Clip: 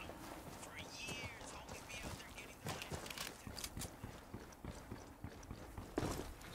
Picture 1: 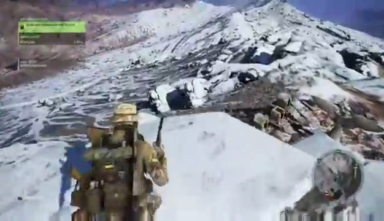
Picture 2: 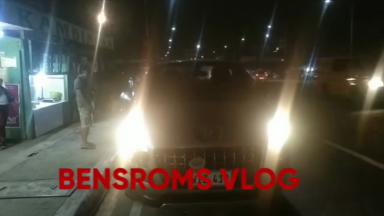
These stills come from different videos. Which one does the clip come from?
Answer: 1